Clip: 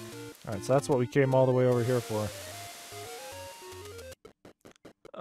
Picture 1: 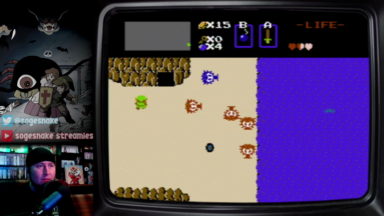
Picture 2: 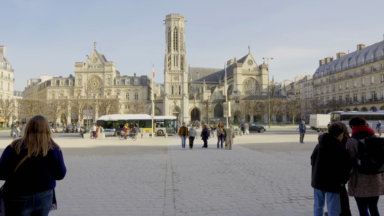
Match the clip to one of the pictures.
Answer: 1